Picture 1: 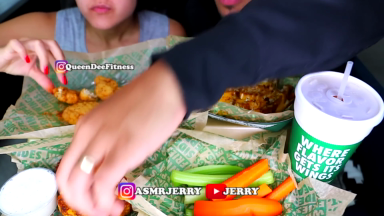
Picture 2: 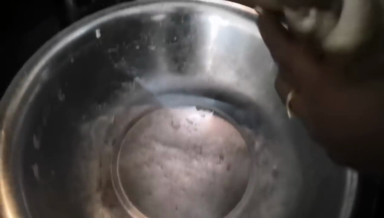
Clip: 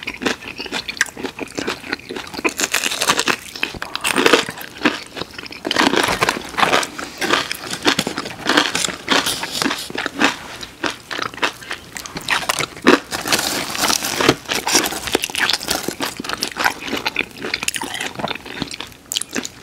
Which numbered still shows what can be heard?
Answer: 1